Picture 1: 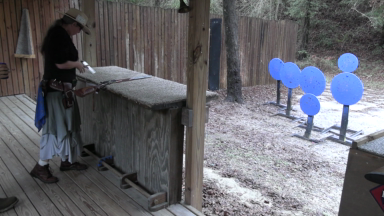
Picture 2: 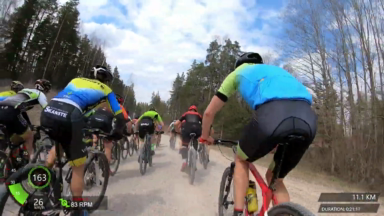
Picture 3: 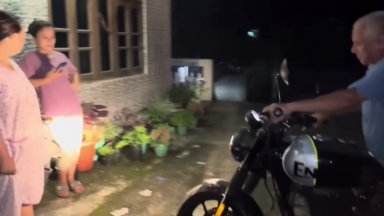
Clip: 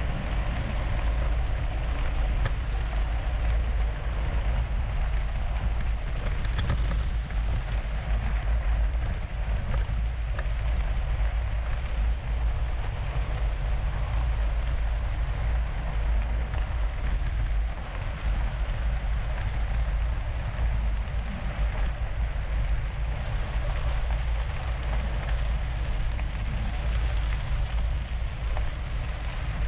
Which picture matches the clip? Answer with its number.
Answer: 2